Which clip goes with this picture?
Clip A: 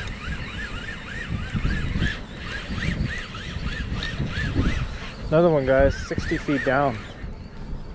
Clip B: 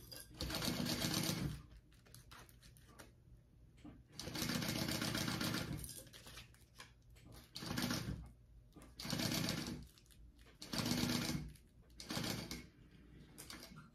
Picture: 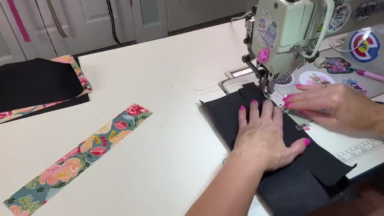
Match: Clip B